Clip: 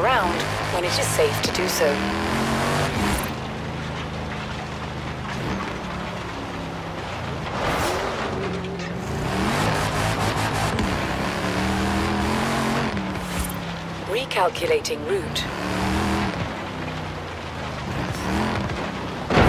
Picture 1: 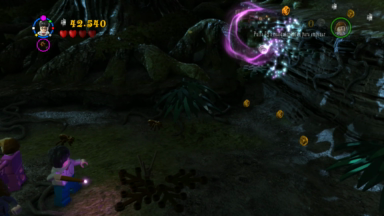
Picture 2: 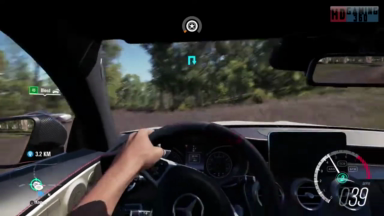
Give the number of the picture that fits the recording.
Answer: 2